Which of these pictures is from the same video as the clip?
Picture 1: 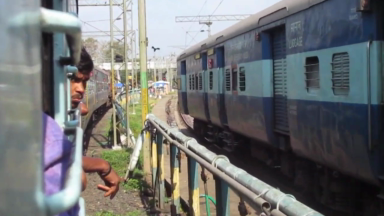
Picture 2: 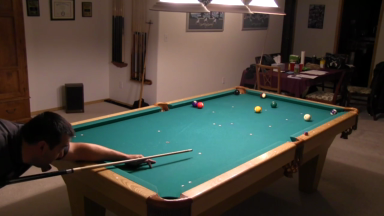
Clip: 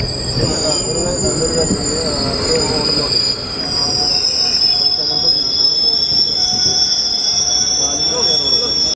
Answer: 1